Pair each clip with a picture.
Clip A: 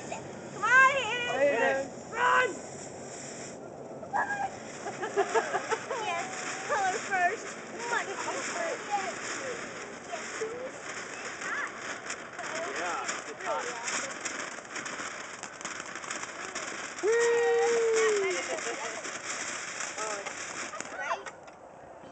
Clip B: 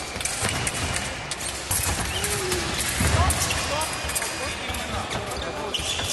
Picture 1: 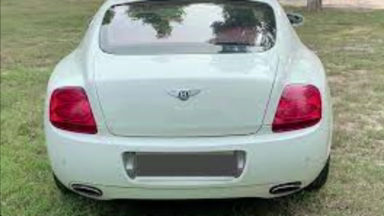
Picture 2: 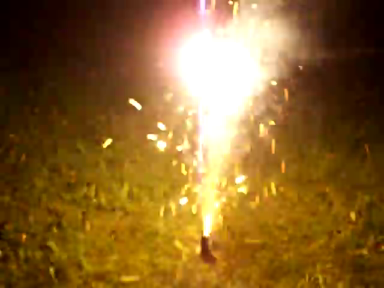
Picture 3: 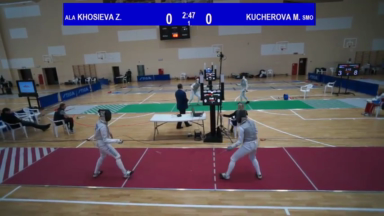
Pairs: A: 2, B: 3